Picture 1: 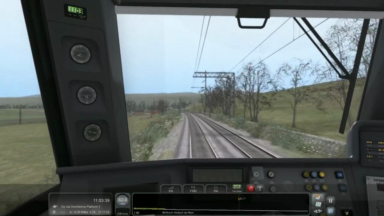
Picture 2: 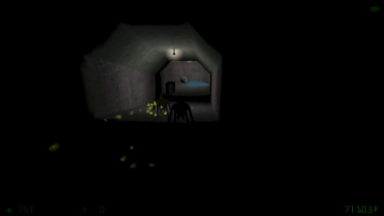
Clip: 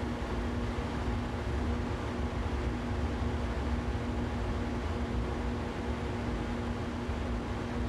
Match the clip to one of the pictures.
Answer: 1